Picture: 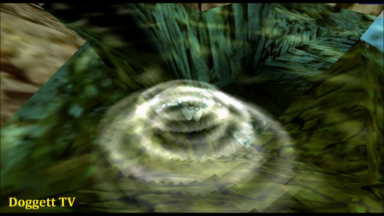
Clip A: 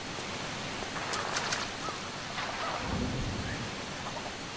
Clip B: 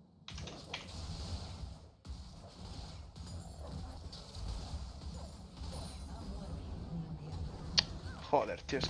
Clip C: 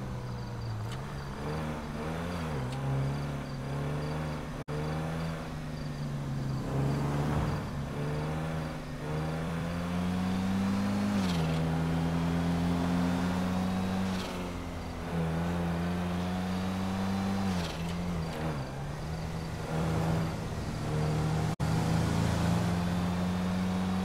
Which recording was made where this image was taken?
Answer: A